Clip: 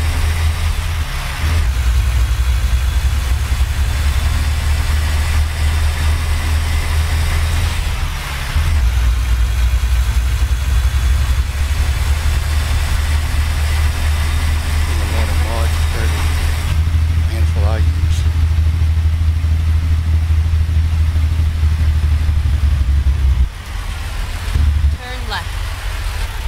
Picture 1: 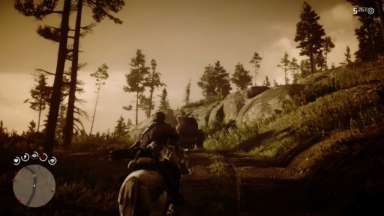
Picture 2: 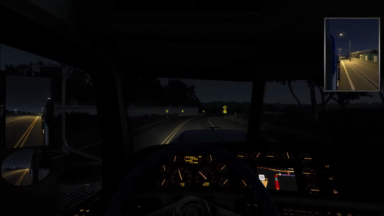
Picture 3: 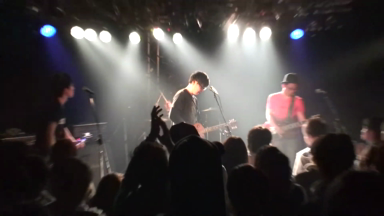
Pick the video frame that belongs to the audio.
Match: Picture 2